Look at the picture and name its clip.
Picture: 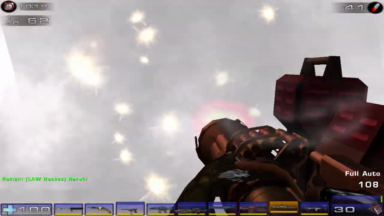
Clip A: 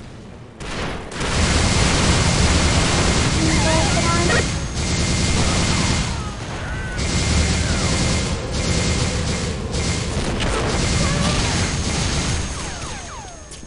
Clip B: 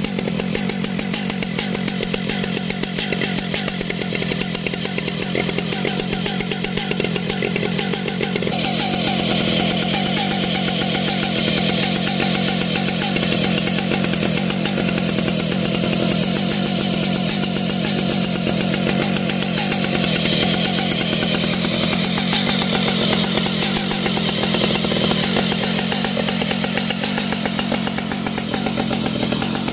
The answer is A